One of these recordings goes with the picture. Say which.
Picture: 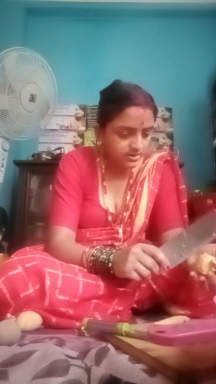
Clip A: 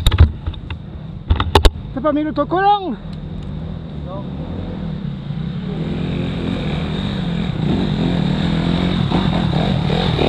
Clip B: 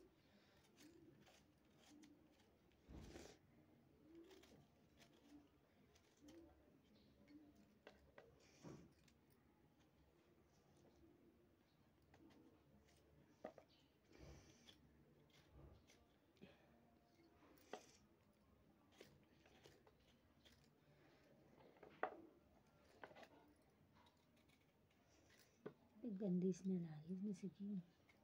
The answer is B